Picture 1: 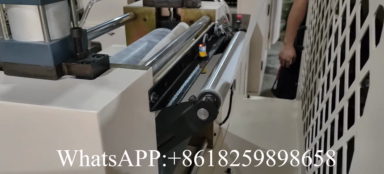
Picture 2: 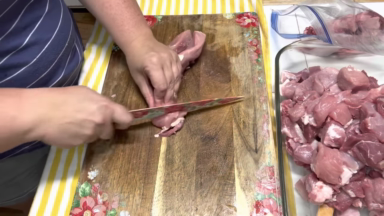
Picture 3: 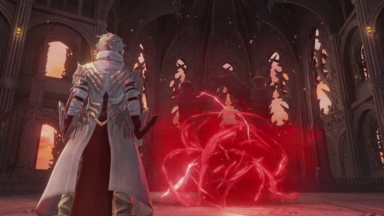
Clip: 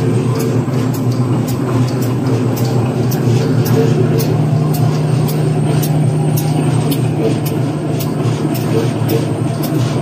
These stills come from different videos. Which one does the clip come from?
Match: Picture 1